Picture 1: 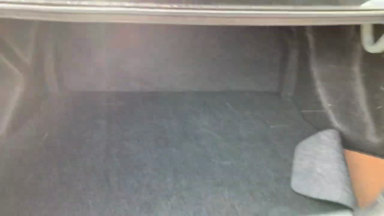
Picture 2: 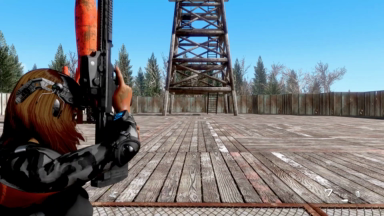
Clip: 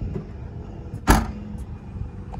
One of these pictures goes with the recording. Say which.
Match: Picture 1